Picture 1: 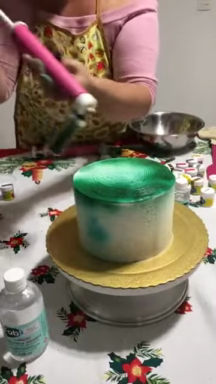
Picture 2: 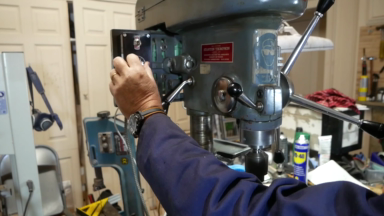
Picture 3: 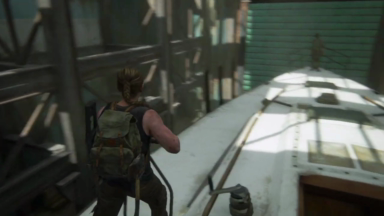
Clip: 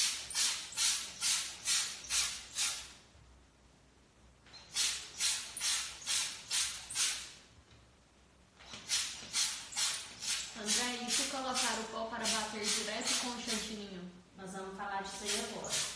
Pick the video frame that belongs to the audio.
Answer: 1